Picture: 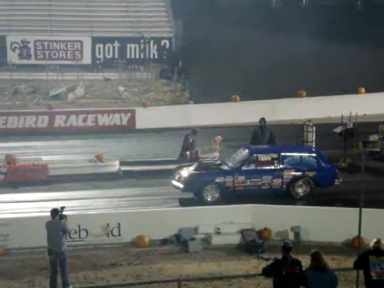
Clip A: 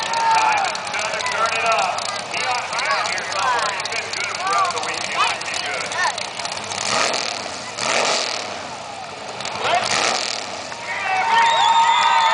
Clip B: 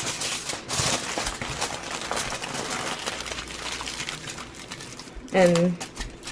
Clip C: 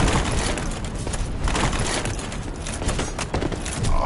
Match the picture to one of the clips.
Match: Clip A